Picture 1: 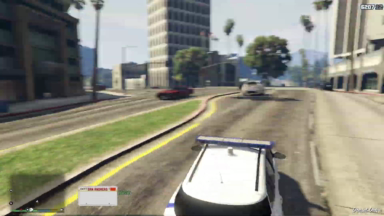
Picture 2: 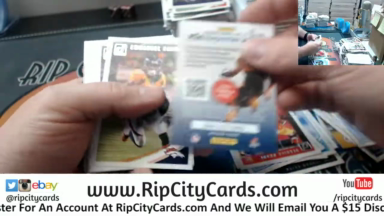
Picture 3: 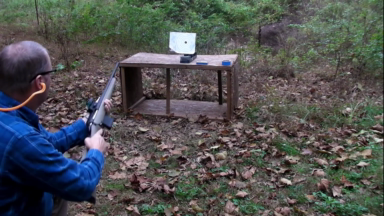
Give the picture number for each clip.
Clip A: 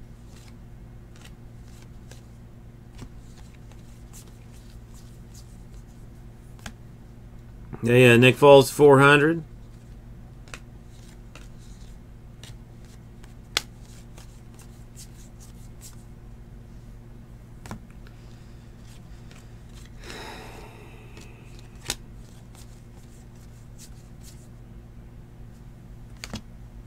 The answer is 2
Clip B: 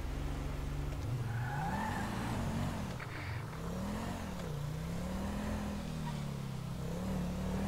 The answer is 1